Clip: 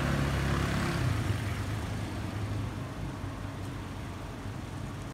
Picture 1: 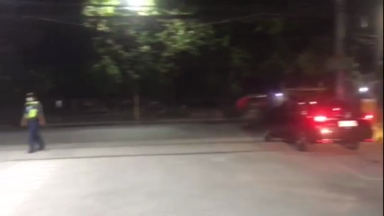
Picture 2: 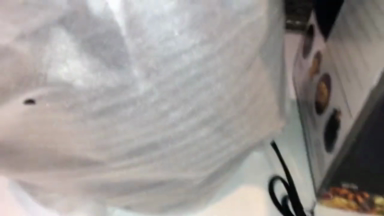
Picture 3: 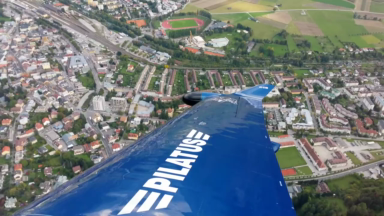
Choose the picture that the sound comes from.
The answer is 1